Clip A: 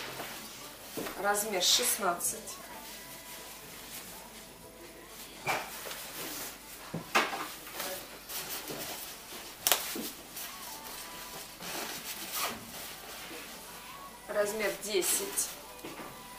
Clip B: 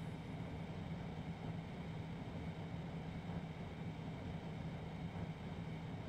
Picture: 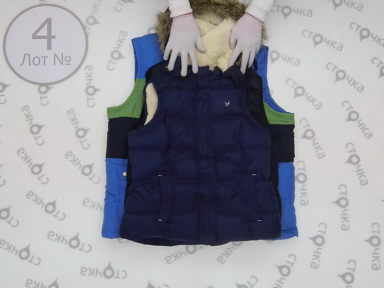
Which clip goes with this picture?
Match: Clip A